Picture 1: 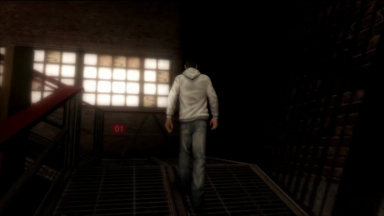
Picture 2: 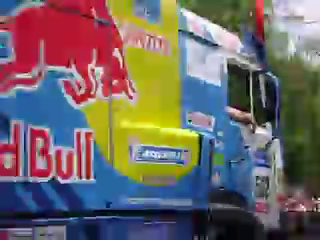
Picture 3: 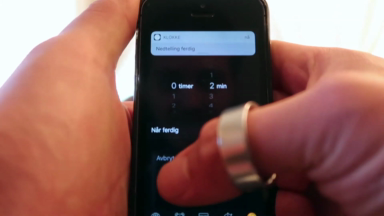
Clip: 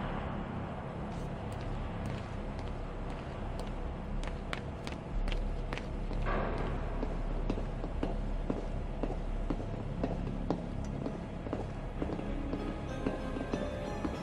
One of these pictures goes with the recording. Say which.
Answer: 1